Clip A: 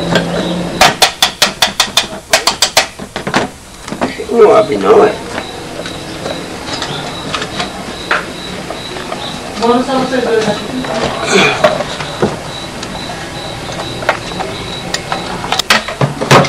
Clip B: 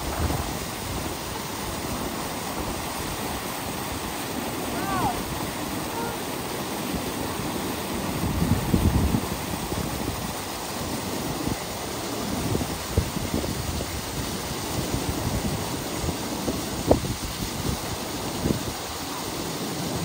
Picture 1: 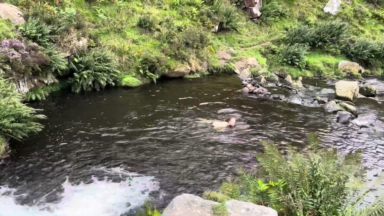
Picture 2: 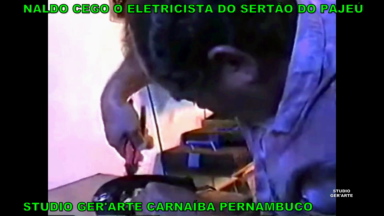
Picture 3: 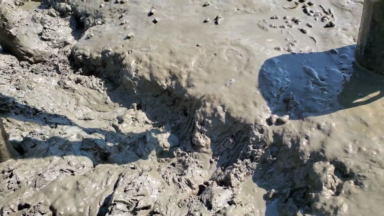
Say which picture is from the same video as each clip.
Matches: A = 2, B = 1